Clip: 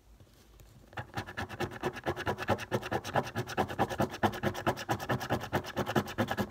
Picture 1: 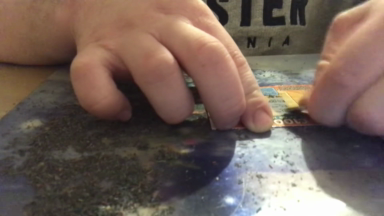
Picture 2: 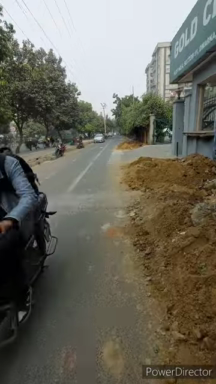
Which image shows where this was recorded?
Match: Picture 1